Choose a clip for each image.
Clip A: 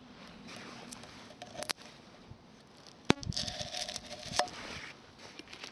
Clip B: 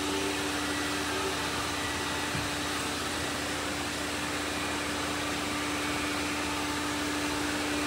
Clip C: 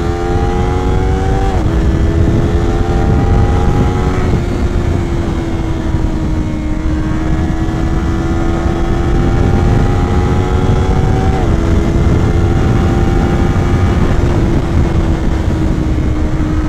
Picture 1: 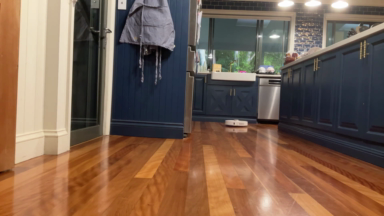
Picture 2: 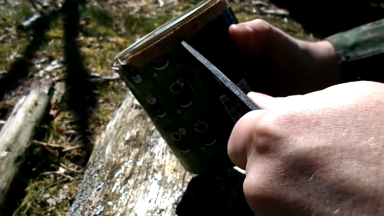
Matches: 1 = B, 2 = A